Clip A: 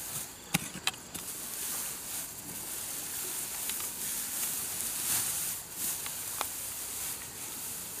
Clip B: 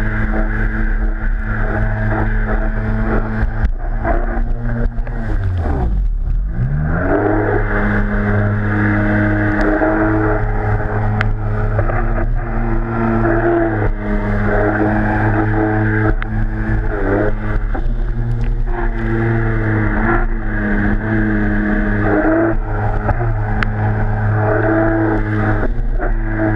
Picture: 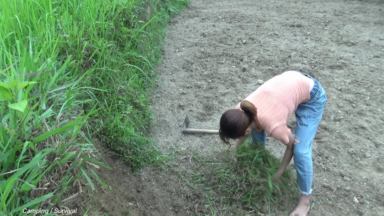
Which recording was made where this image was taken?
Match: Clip A